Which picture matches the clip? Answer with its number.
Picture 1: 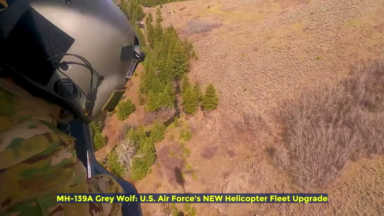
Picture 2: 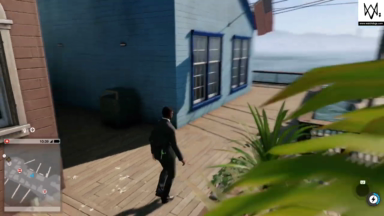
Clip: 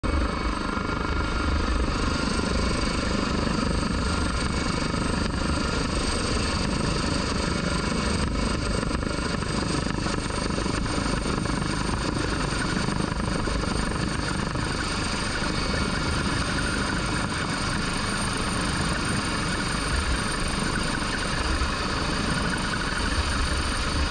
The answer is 1